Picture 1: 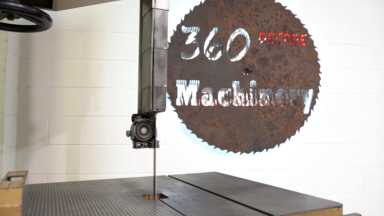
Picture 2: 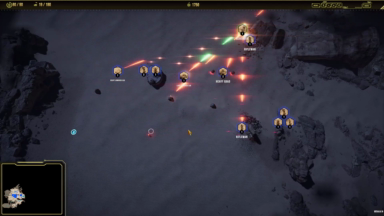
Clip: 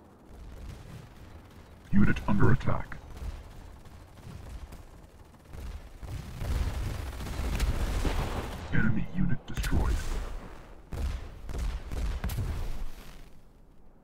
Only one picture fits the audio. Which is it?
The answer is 2